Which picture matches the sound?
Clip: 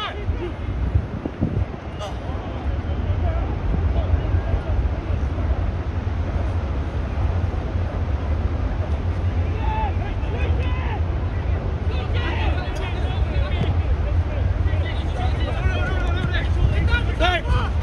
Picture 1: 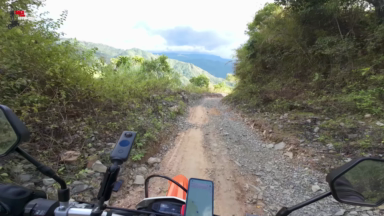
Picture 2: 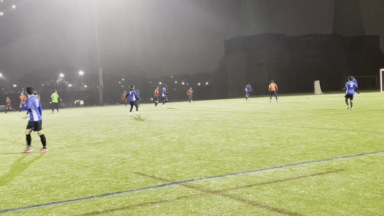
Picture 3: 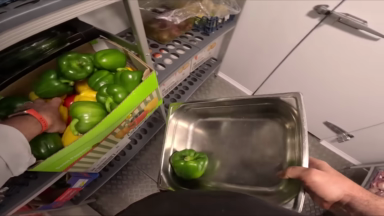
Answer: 2